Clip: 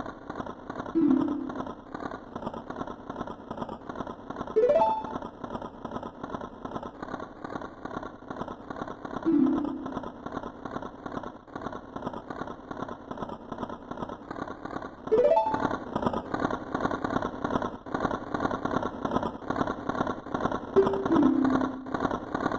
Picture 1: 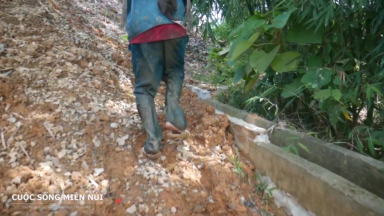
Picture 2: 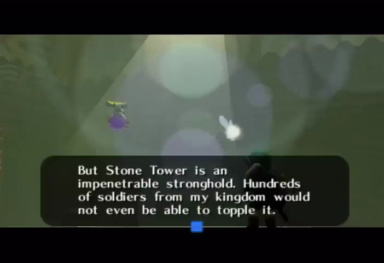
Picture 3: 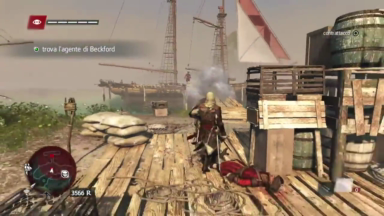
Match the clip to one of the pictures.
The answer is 2